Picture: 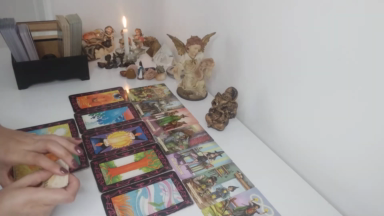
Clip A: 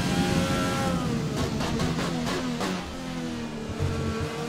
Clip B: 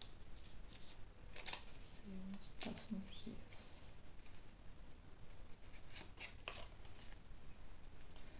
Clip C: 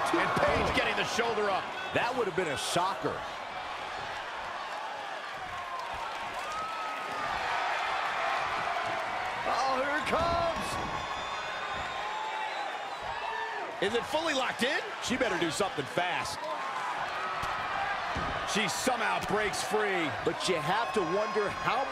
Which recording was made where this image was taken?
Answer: B